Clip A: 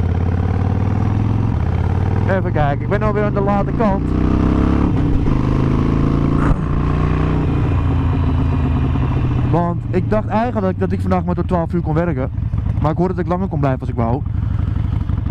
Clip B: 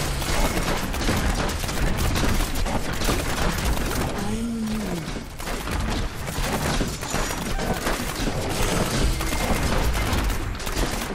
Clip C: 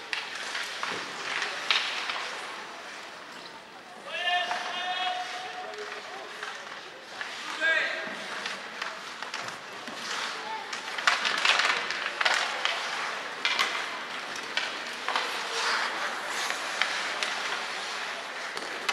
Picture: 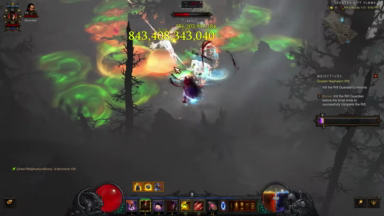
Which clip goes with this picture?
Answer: B